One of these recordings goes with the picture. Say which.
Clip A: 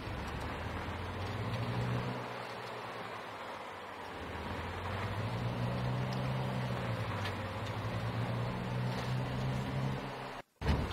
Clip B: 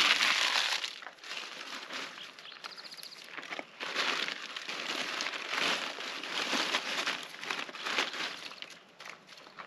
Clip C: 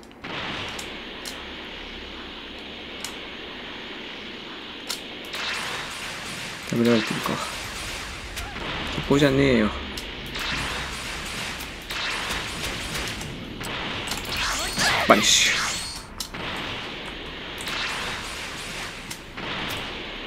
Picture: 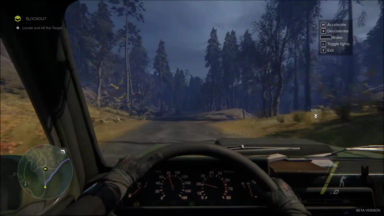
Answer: A